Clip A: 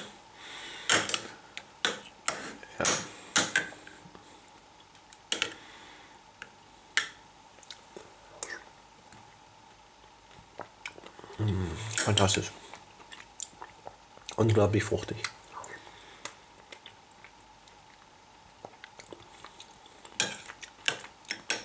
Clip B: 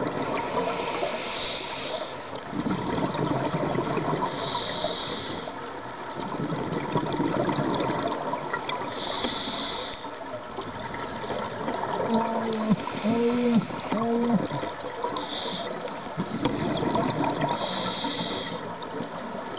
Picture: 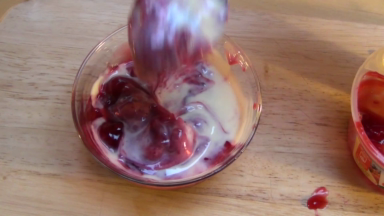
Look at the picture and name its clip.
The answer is A